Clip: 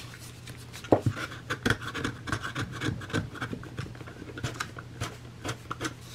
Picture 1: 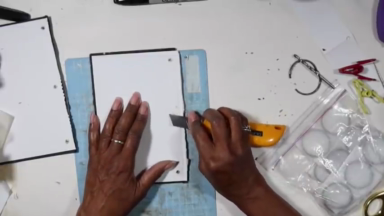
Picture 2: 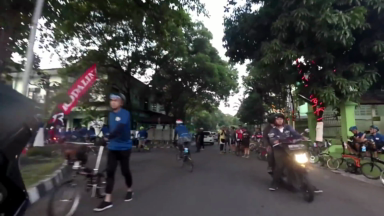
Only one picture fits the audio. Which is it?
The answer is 1